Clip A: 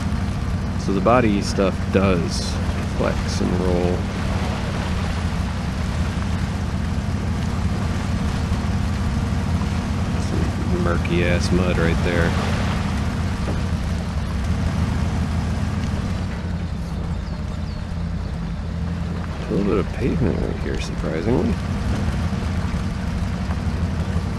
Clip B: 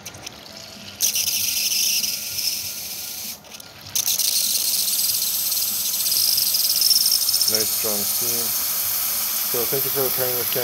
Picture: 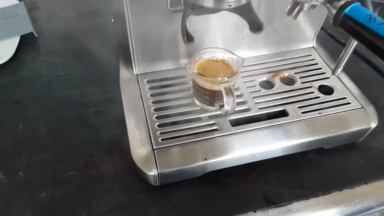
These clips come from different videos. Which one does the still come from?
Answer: B